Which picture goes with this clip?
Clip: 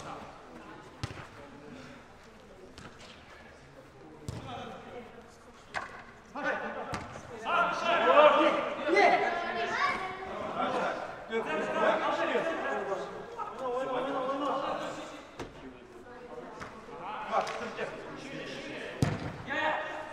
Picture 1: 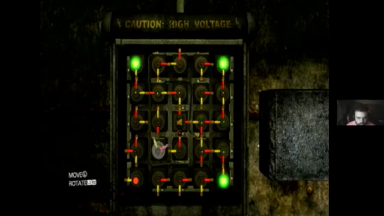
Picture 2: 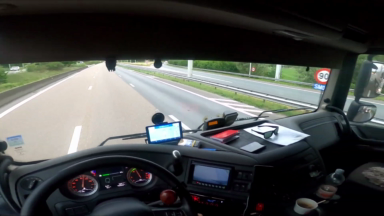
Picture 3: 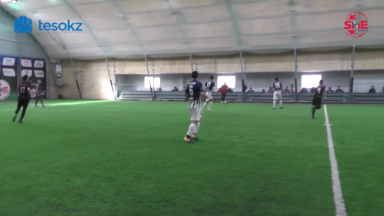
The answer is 3